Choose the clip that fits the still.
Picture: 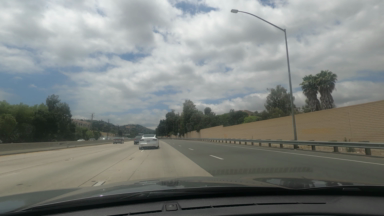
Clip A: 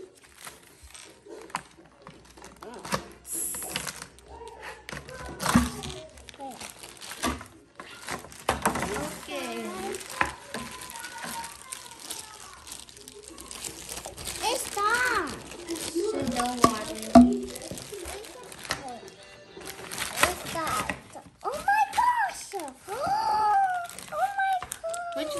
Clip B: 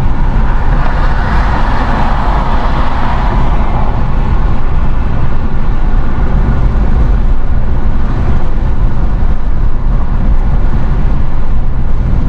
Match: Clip B